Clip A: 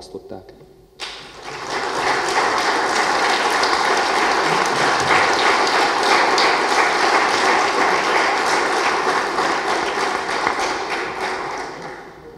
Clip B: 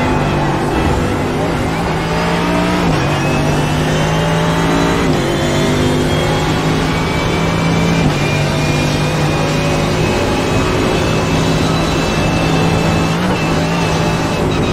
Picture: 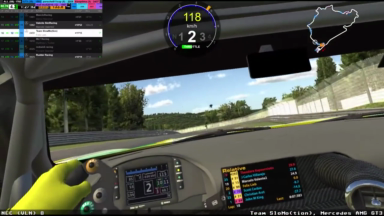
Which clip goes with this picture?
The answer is B